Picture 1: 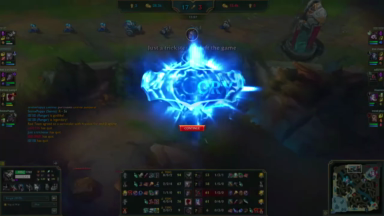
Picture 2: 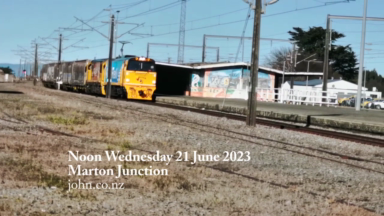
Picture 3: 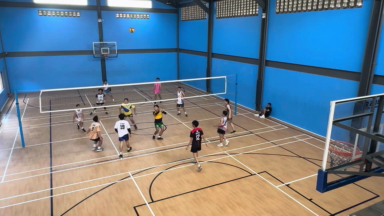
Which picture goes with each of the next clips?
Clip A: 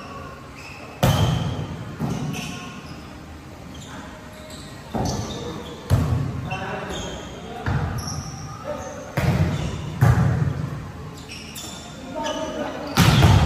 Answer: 3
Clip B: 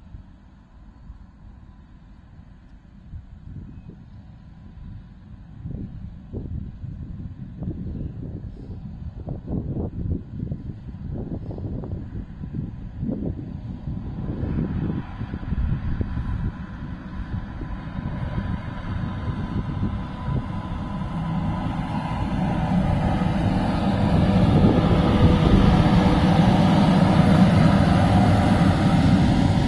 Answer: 2